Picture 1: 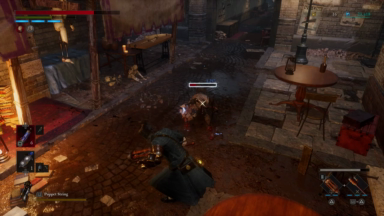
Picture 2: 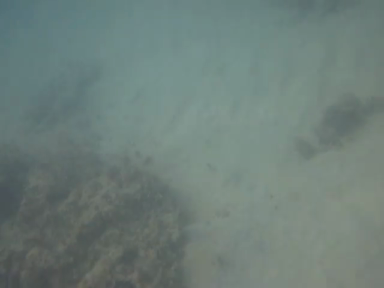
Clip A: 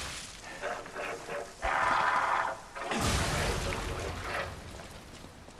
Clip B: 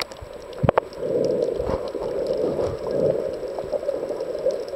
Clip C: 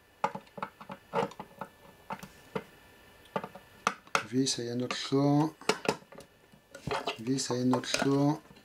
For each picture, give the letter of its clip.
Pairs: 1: A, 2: B